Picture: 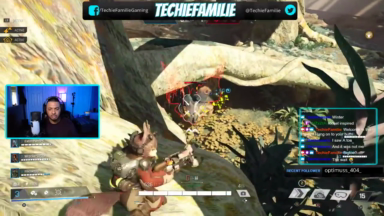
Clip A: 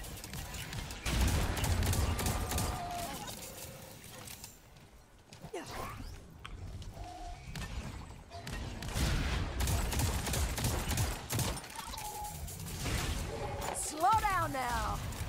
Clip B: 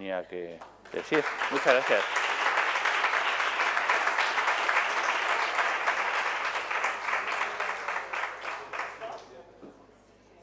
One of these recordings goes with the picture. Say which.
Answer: A